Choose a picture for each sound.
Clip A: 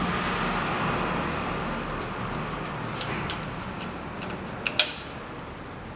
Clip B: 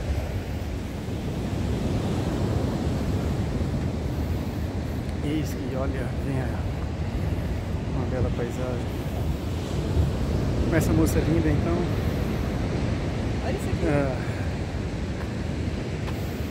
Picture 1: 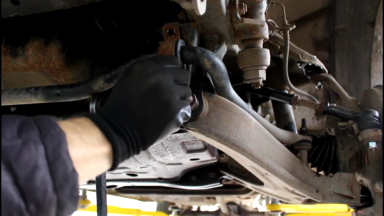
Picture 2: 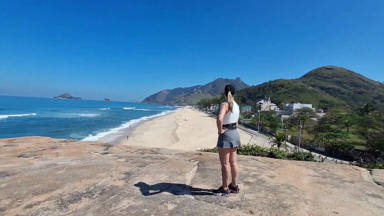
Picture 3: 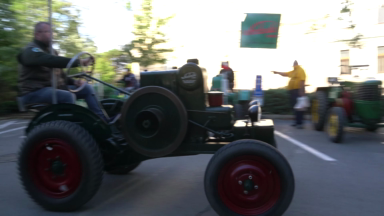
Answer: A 1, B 2